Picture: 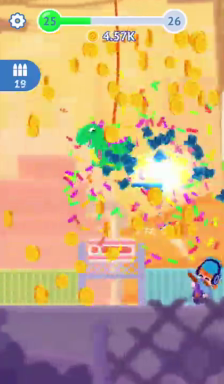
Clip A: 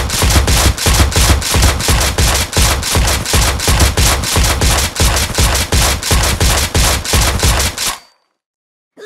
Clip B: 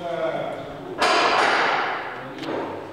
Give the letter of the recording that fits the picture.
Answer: A